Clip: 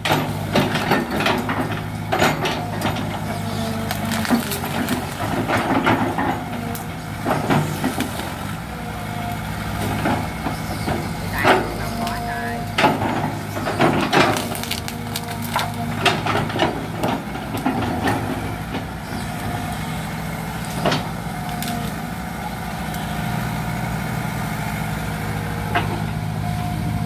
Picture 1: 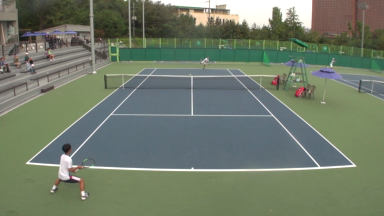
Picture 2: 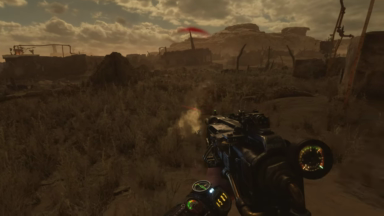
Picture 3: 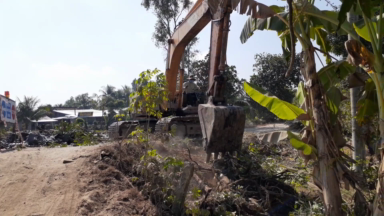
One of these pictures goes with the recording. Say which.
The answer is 3